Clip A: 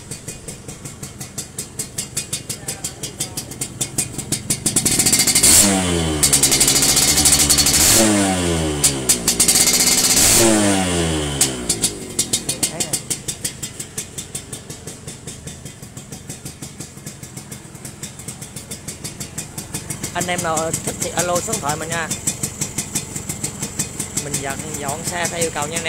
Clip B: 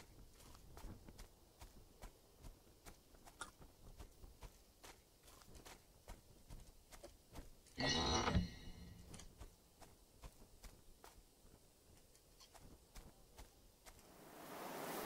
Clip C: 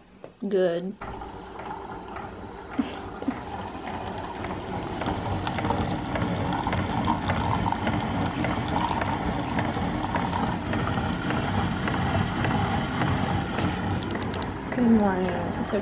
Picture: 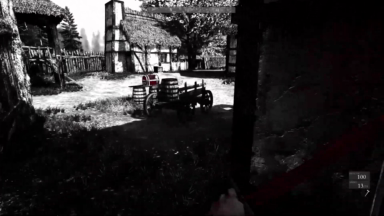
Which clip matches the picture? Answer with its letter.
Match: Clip B